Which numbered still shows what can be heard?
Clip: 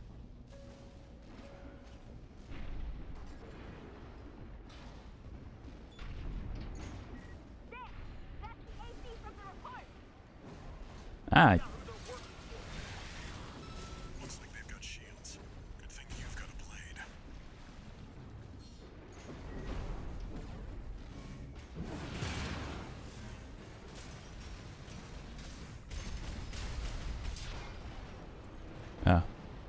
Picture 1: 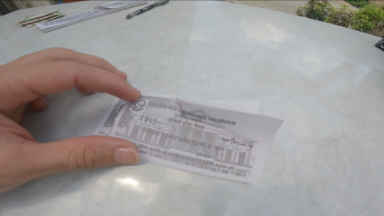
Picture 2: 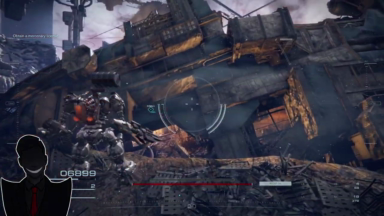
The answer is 2